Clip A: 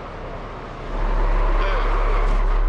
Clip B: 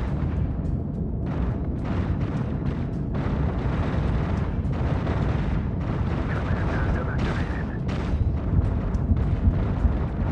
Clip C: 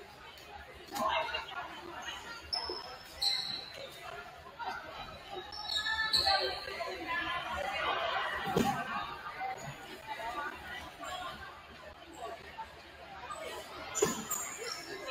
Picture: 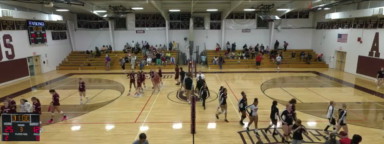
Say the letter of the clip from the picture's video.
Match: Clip C